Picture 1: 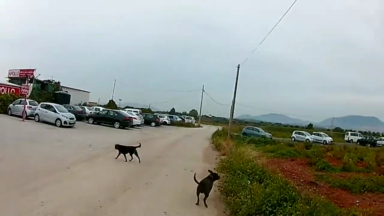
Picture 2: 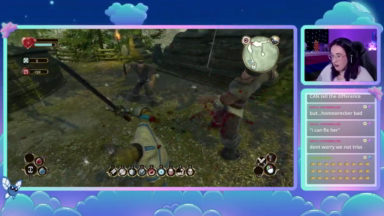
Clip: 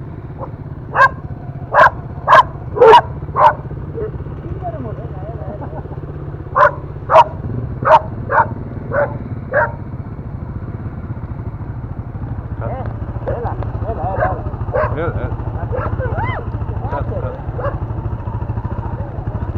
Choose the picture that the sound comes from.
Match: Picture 1